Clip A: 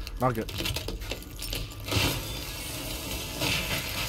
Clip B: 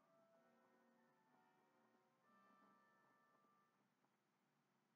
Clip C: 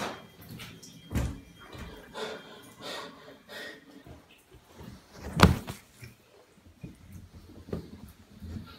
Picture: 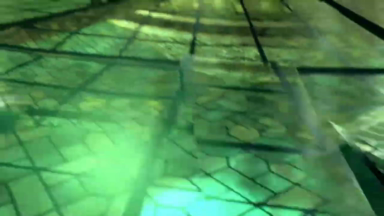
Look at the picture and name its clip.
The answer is A